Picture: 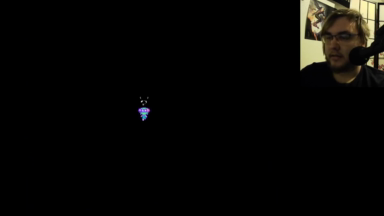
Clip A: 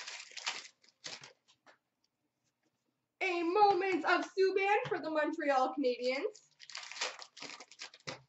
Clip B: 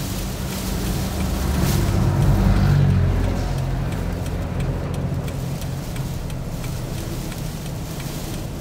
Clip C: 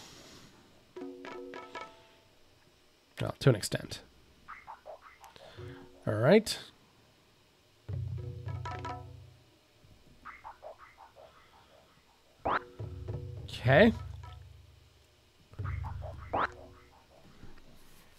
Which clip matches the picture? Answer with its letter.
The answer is C